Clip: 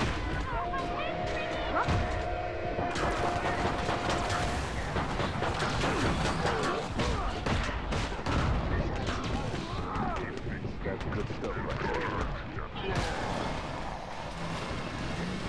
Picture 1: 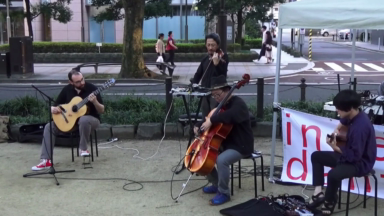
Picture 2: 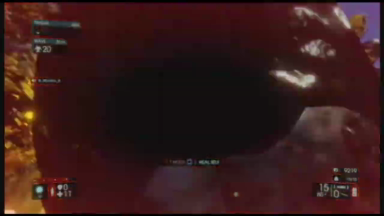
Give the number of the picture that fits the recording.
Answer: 2